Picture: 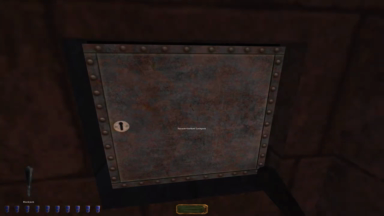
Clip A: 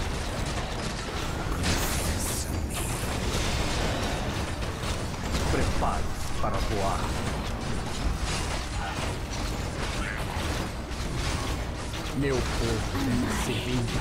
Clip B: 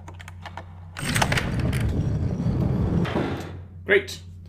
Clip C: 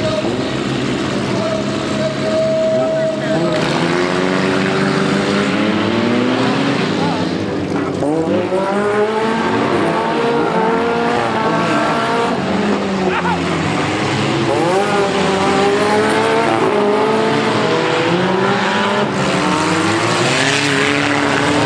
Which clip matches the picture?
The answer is B